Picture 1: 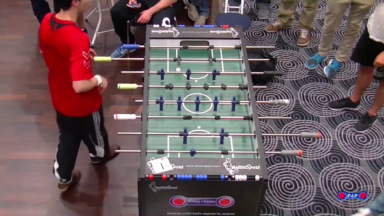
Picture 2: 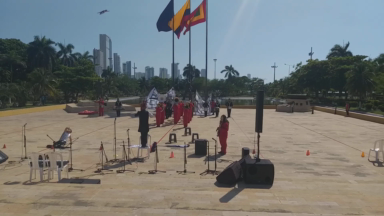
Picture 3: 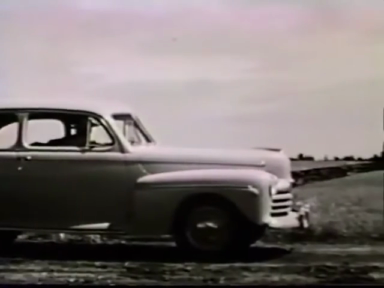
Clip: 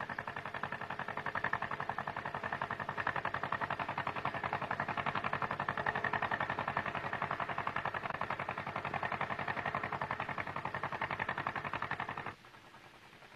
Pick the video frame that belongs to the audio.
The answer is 3